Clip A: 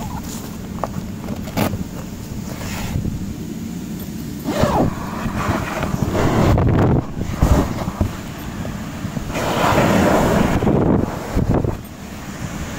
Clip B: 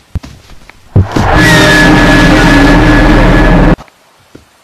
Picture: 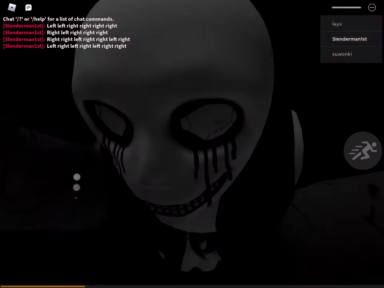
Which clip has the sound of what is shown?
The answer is B